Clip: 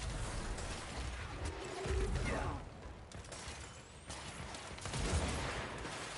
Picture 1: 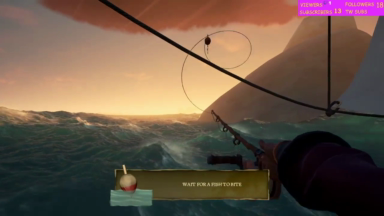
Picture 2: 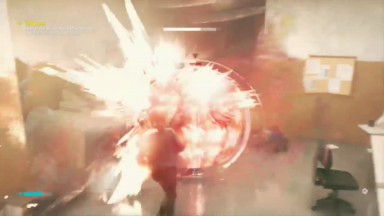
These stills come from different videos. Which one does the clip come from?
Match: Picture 2